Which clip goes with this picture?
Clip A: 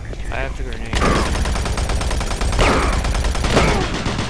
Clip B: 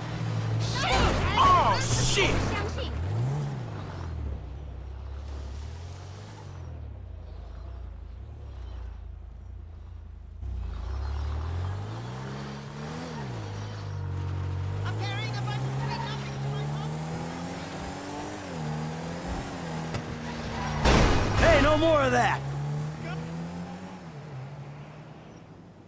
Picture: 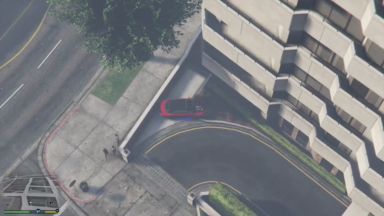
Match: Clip B